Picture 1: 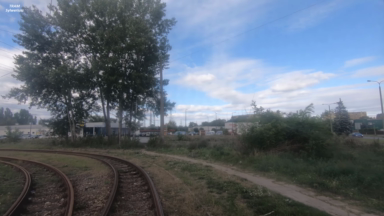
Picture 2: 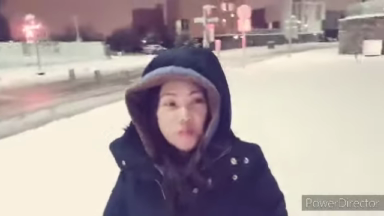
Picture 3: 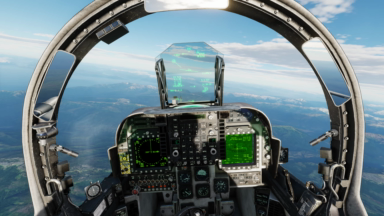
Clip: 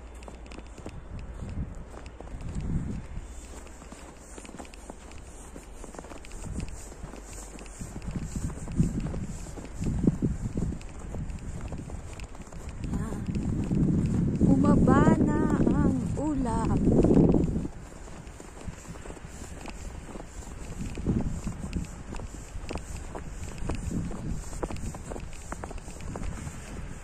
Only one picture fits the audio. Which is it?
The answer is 2